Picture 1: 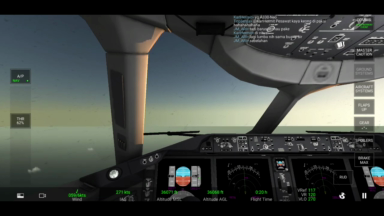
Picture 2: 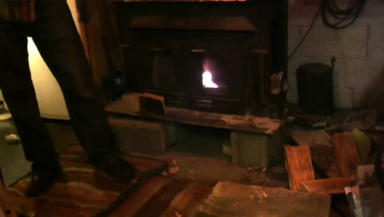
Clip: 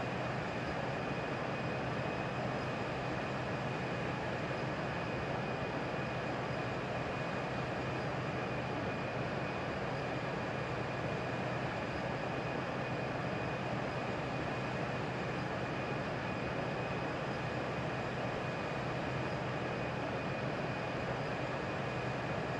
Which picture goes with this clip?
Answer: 1